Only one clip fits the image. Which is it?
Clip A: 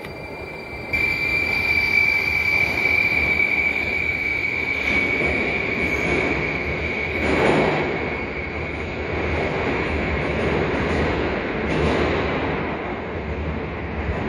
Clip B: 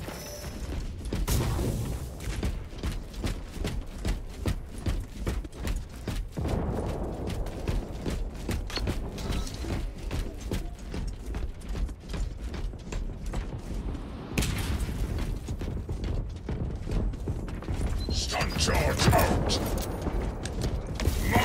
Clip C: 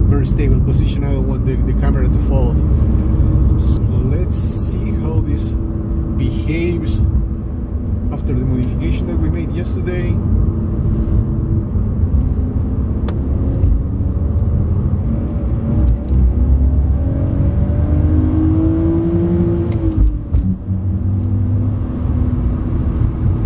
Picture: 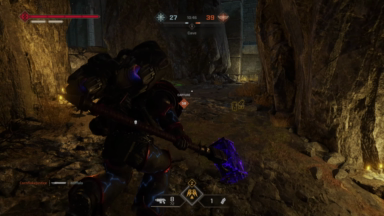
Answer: B